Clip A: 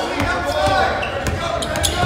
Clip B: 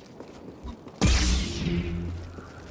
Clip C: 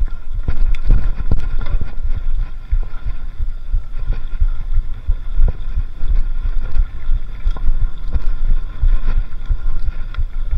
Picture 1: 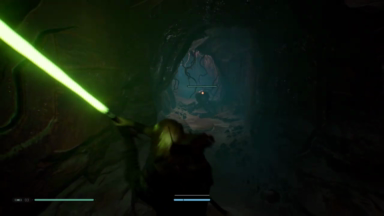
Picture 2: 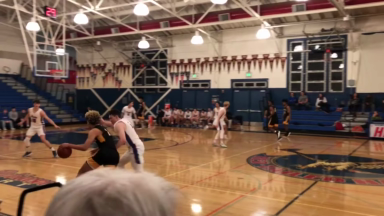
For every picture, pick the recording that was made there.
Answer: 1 B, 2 A